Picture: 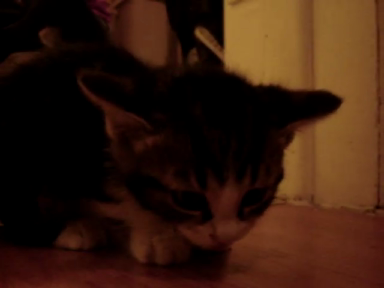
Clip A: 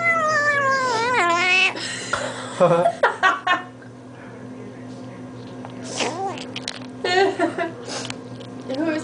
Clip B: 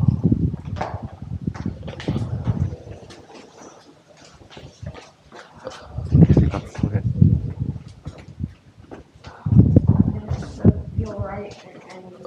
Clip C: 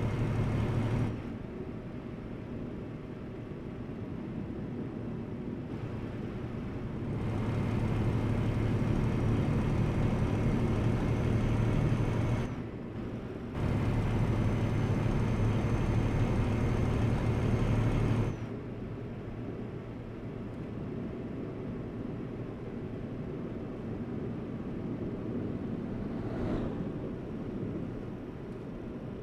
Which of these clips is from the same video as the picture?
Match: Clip A